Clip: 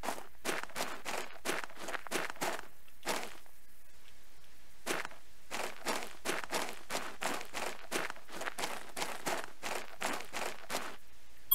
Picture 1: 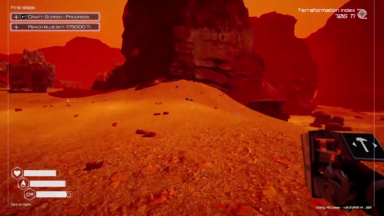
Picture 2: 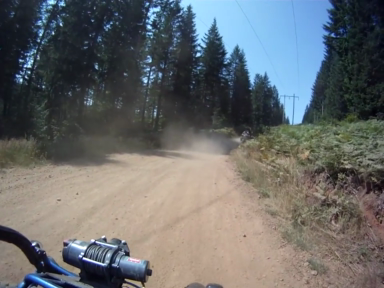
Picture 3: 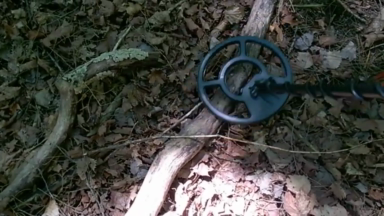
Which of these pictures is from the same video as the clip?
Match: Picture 1